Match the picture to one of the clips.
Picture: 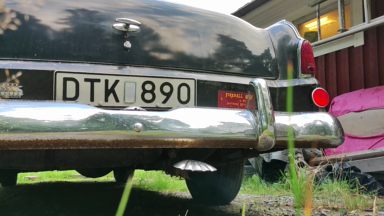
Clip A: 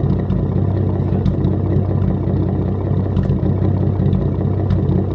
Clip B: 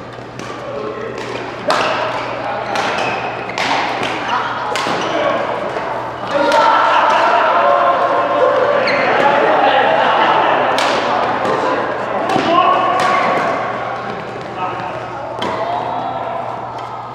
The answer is A